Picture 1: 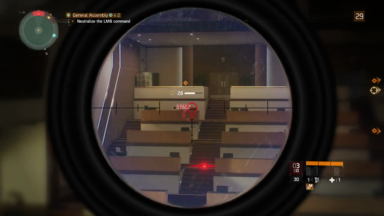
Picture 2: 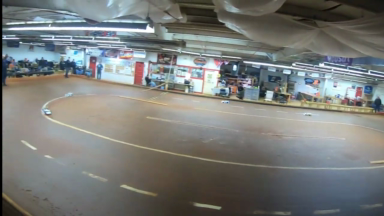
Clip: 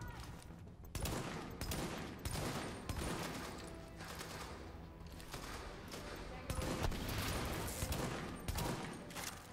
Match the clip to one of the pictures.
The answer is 1